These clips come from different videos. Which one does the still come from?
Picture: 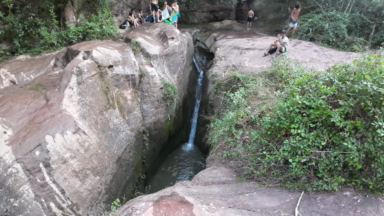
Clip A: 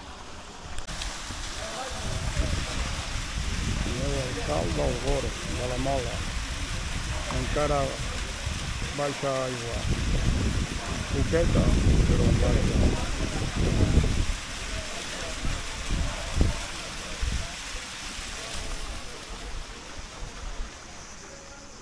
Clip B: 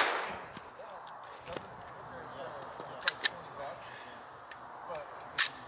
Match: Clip A